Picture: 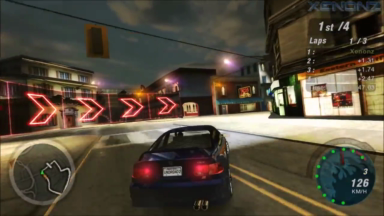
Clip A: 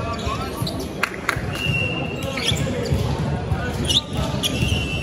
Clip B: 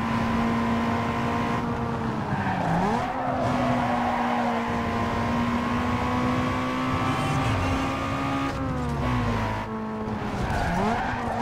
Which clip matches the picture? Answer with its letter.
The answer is B